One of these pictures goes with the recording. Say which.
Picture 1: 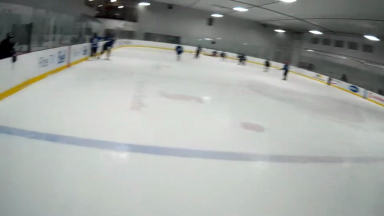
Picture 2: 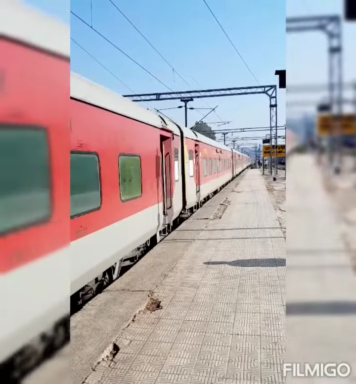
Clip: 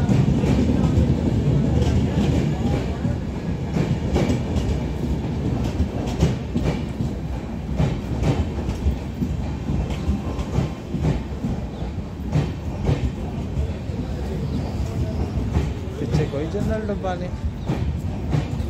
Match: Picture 2